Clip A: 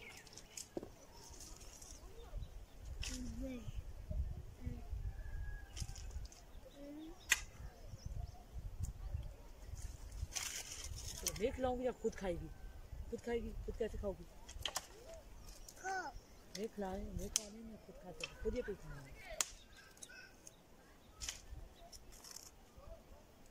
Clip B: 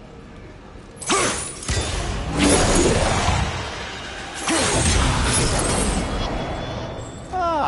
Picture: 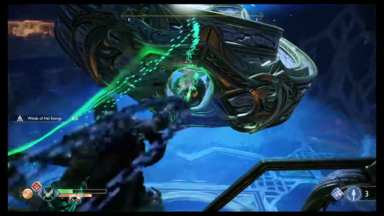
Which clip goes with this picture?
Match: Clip B